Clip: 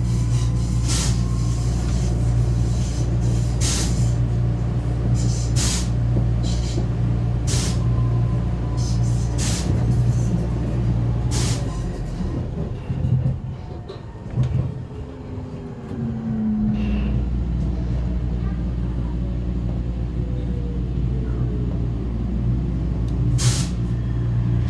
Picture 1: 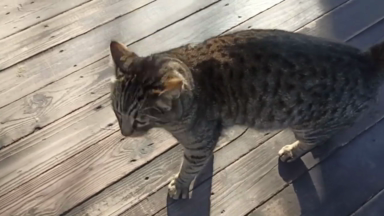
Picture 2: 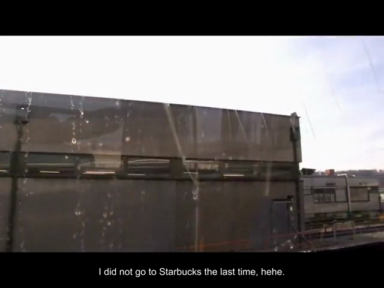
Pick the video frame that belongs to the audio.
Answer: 2